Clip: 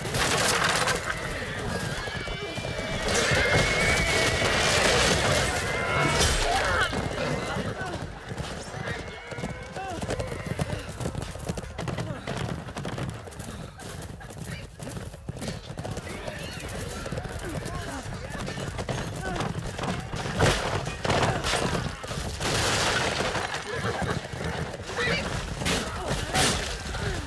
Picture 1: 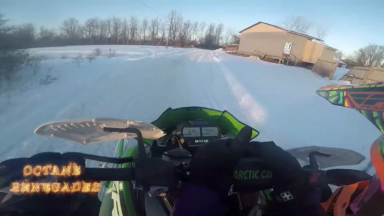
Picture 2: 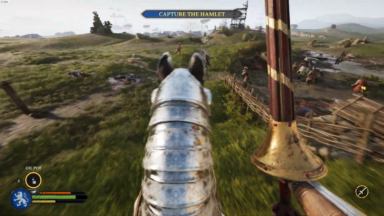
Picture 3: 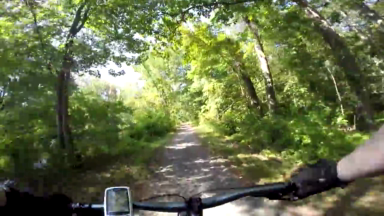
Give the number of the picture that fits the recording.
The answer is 2